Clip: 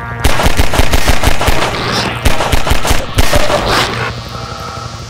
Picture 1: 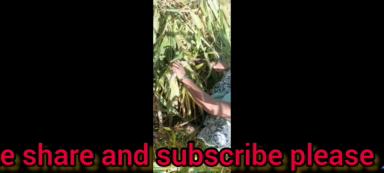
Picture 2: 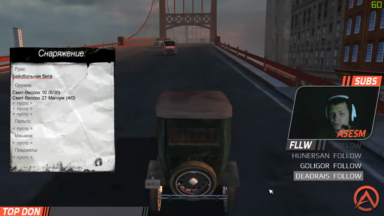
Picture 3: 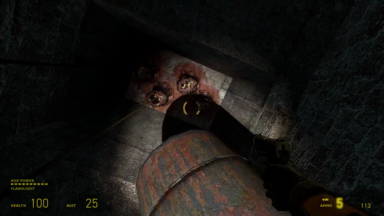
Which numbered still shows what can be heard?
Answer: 3